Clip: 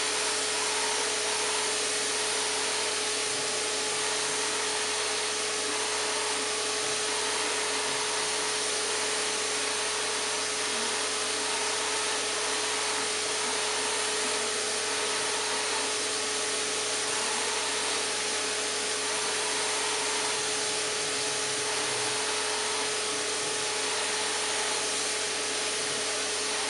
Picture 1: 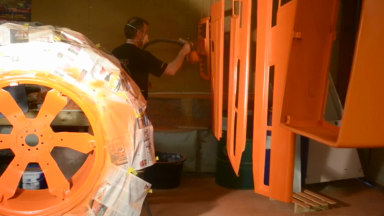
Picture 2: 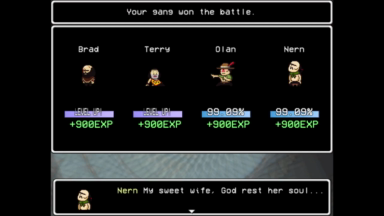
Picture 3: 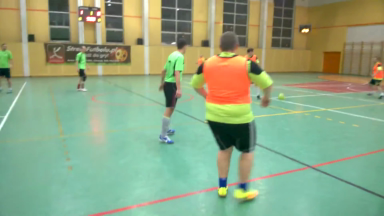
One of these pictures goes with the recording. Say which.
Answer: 1